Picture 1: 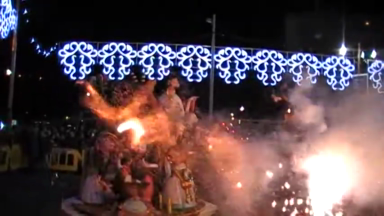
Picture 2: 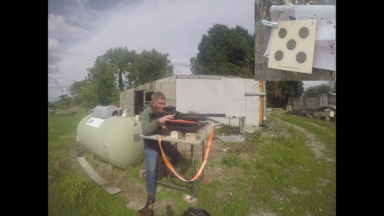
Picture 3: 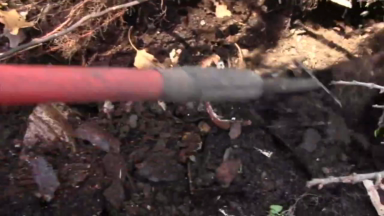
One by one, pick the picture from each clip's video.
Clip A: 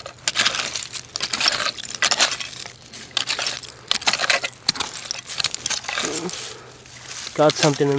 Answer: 3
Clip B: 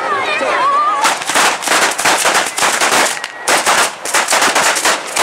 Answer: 1